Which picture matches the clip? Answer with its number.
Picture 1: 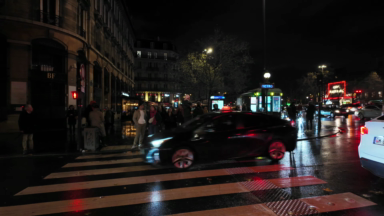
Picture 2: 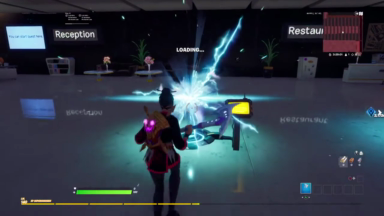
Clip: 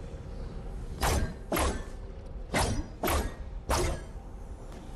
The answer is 2